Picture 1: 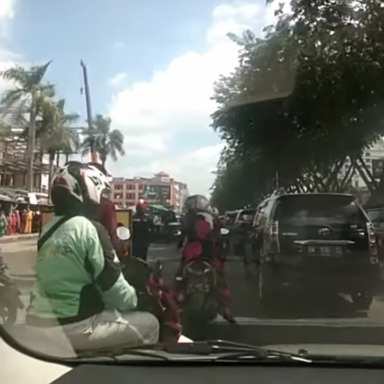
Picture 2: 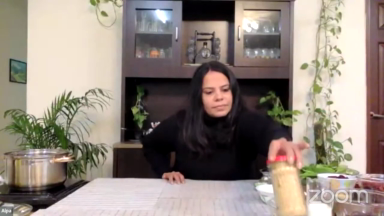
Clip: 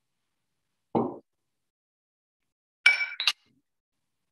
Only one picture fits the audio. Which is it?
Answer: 2